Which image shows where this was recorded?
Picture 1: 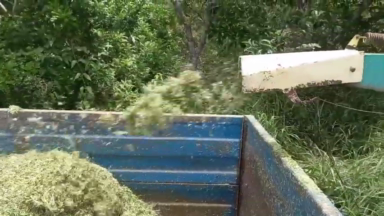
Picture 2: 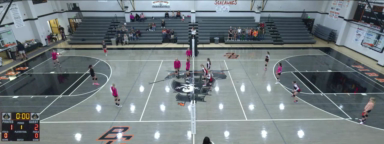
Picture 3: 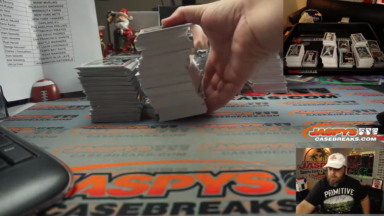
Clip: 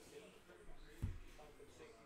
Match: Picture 3